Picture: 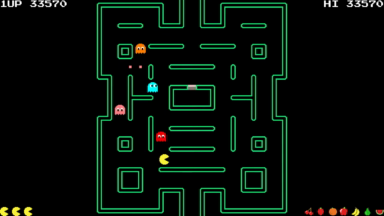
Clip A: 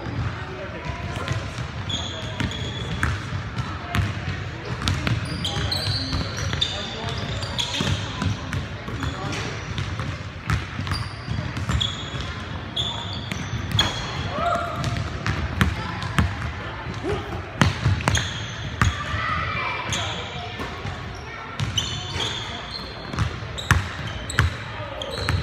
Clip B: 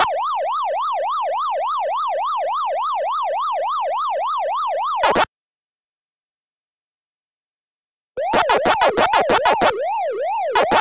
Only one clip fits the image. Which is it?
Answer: B